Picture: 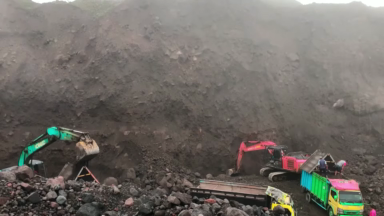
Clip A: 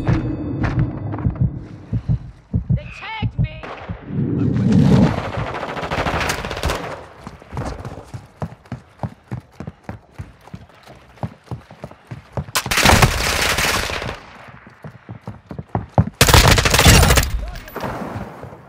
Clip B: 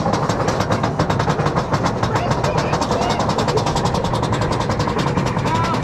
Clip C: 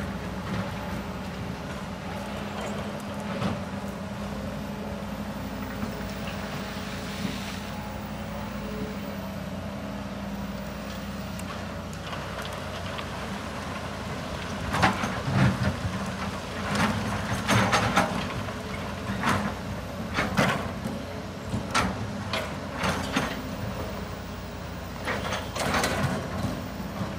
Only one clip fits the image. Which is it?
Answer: C